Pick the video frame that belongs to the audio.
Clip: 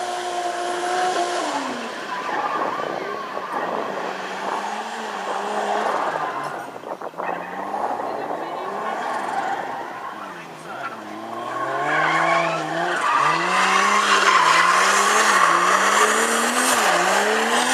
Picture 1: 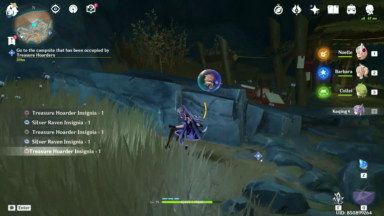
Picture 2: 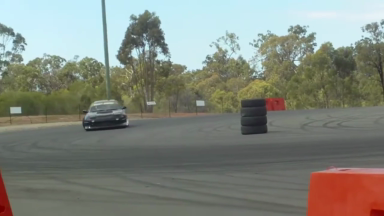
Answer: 2